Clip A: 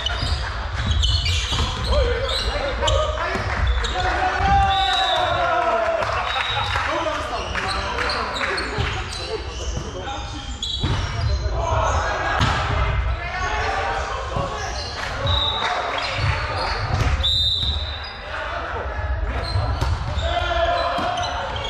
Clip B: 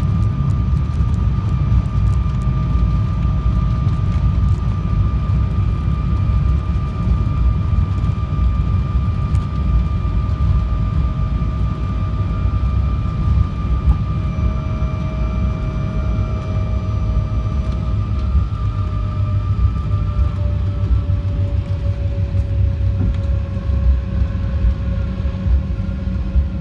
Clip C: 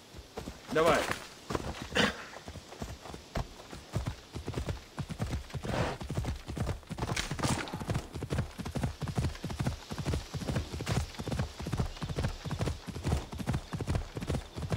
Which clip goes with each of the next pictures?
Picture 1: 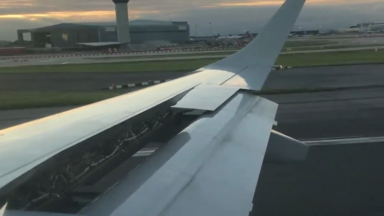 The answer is B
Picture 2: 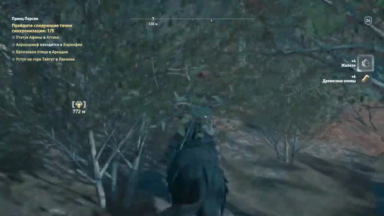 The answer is C